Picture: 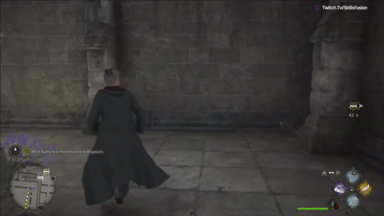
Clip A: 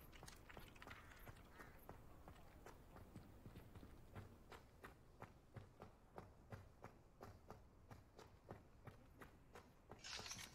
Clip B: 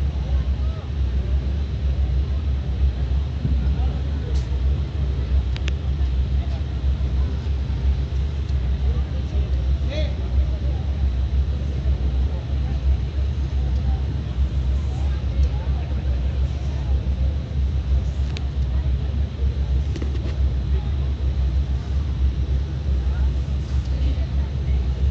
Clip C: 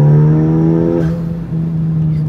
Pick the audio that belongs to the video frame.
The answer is A